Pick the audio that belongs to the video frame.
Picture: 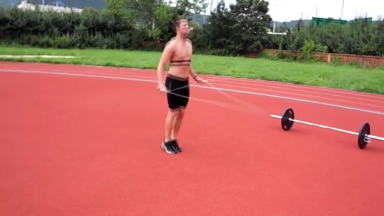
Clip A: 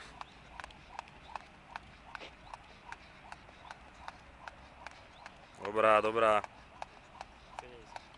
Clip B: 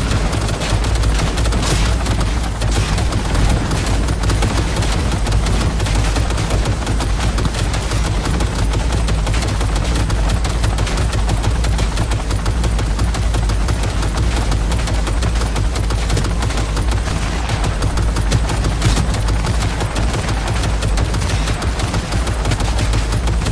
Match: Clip A